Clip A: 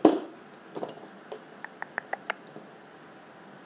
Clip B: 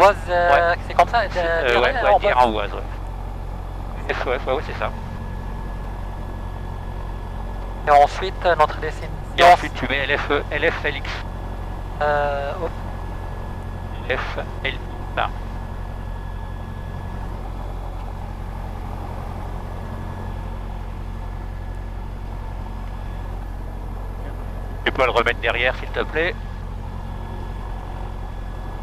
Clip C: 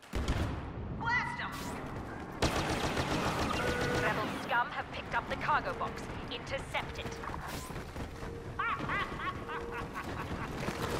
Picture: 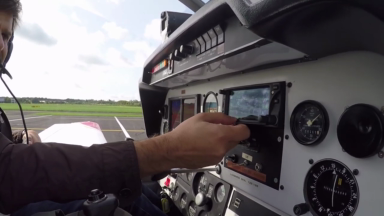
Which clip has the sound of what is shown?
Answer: B